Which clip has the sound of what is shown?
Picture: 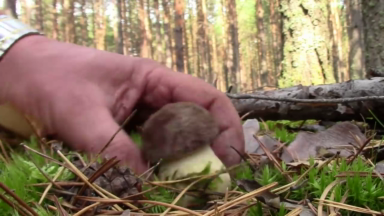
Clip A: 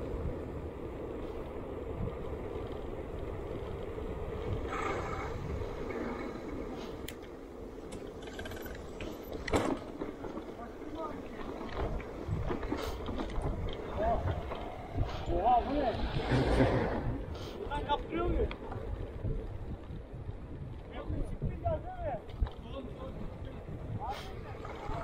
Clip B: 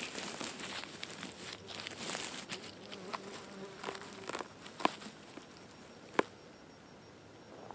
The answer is B